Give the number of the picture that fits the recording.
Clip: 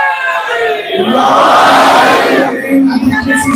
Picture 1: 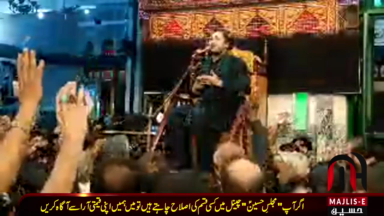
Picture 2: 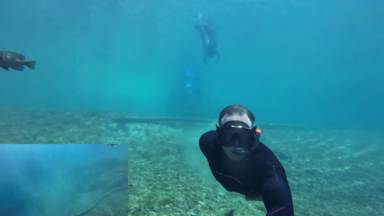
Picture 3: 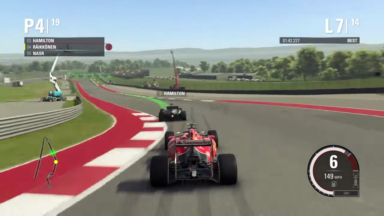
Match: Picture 1